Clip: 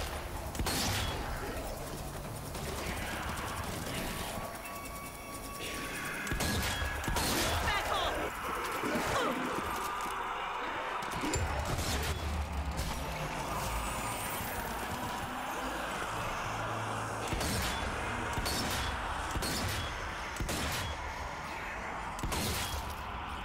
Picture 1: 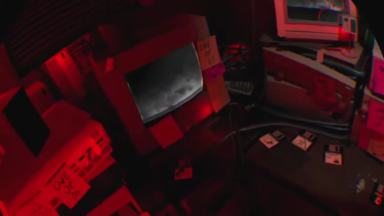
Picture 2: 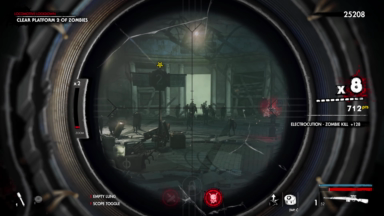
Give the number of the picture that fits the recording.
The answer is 2